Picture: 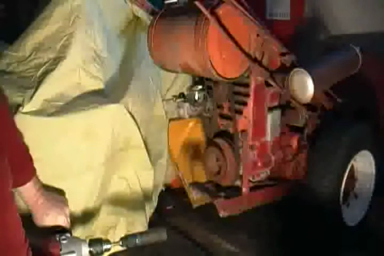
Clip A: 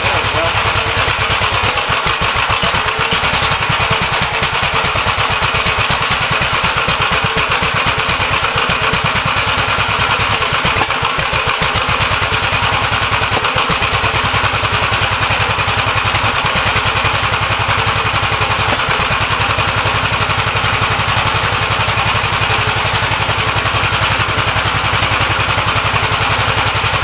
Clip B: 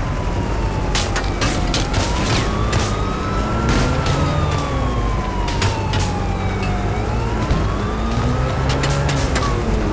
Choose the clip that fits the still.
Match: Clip A